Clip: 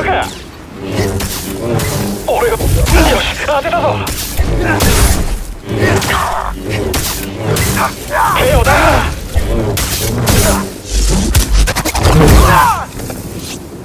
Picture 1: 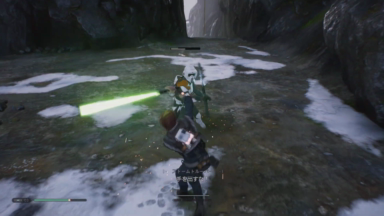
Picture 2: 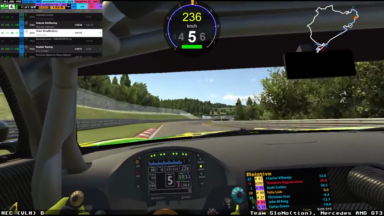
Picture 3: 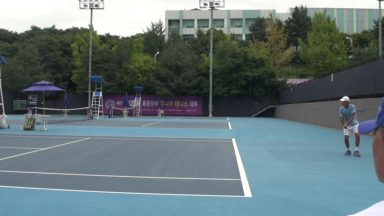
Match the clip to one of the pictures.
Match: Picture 1